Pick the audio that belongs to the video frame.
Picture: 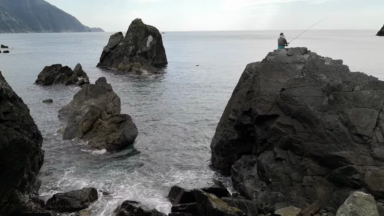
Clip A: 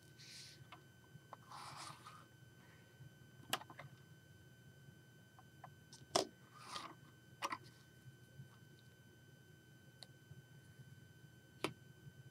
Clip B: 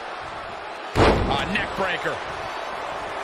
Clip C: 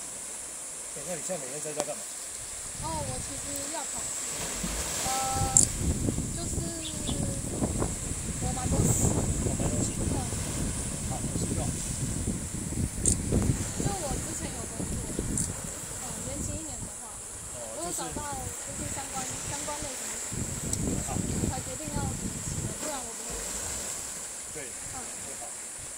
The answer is C